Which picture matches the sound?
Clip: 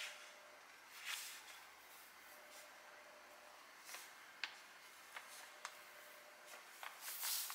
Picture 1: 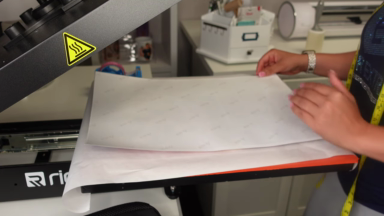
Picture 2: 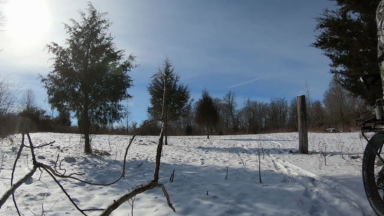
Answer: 1